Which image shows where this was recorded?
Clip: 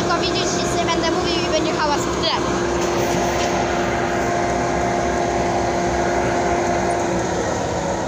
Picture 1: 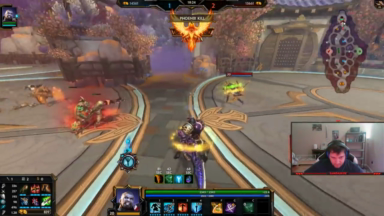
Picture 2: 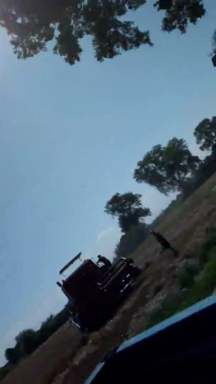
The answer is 2